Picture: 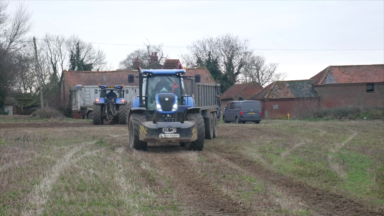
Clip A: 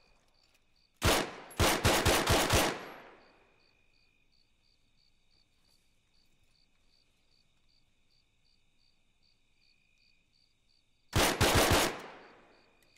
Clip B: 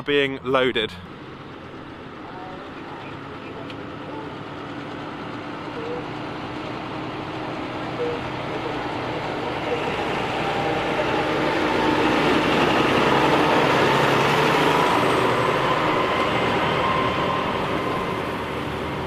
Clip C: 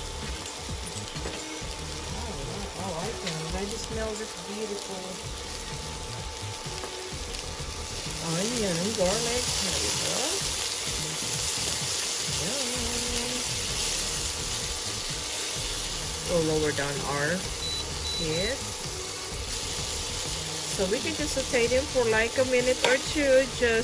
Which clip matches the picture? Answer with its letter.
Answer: B